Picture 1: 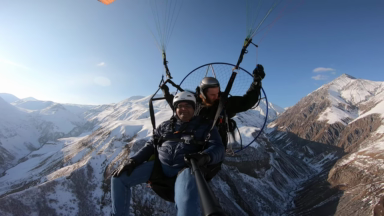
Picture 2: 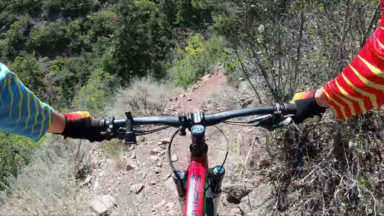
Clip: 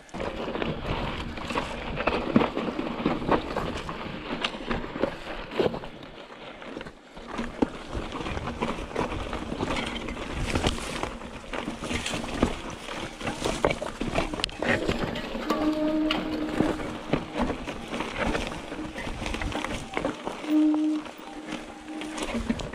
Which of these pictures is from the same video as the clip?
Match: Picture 2